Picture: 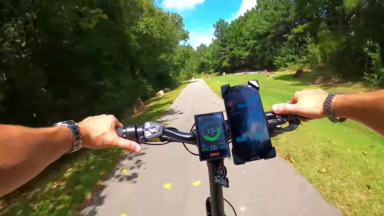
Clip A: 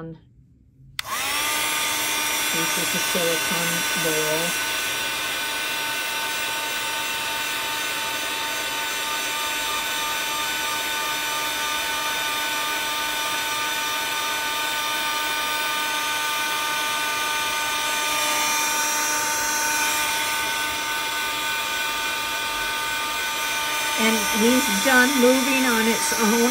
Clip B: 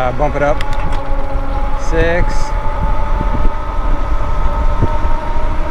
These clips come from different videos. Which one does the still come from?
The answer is B